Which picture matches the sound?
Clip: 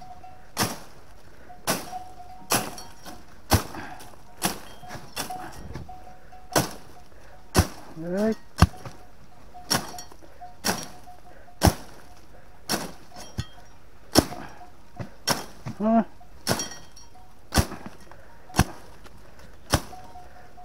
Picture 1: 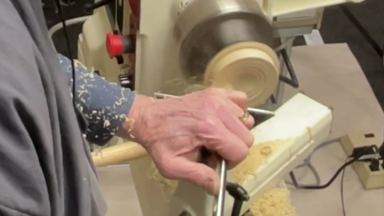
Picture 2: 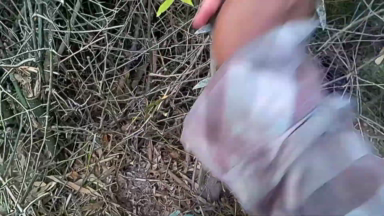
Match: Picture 2